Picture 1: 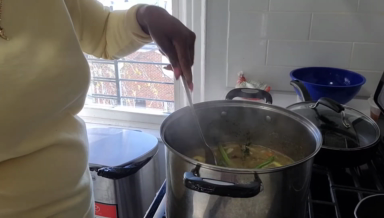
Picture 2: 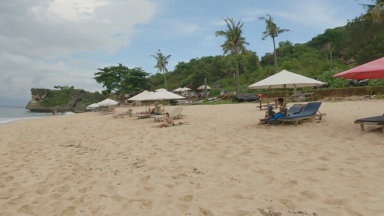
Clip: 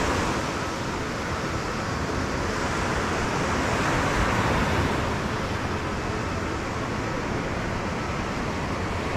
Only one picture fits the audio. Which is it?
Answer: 2